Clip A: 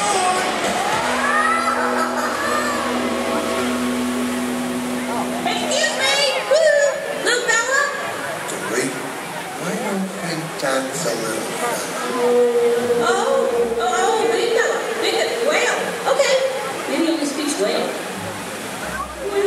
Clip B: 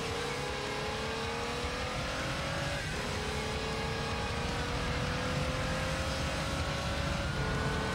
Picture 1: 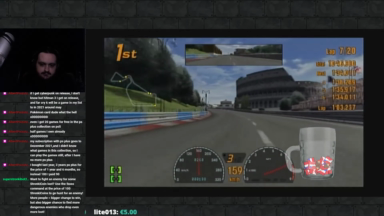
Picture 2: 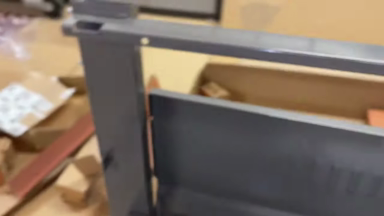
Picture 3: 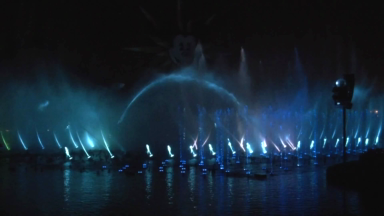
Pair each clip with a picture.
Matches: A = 3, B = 1